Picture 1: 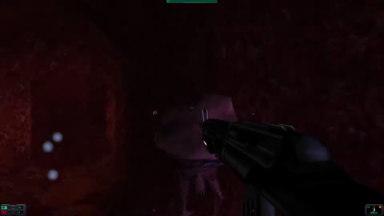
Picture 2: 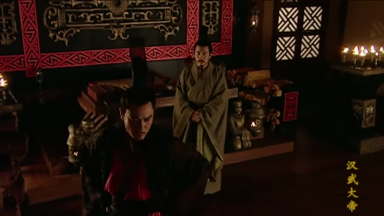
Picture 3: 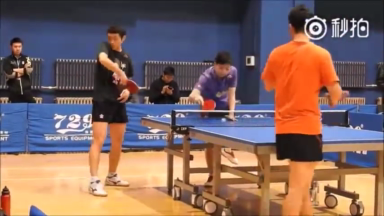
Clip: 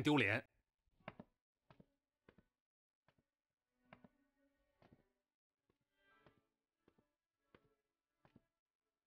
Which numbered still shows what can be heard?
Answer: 2